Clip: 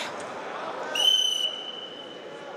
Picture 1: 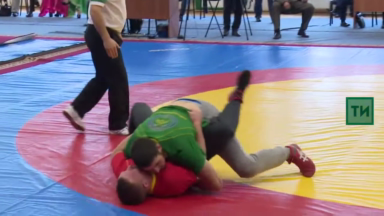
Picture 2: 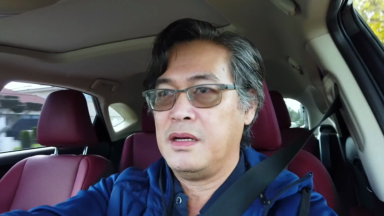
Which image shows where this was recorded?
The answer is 1